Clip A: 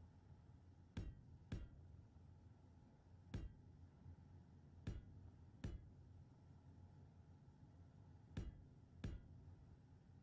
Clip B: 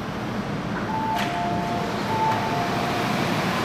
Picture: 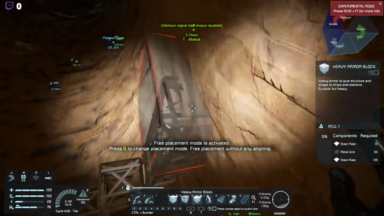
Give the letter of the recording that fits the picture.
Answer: A